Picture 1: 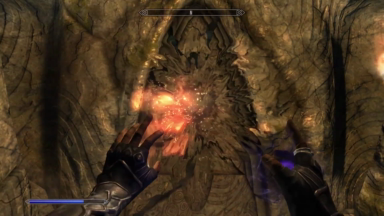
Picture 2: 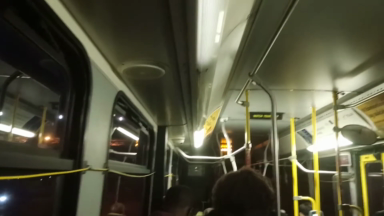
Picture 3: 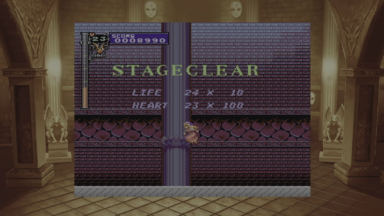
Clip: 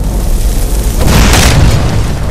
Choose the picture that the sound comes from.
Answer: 1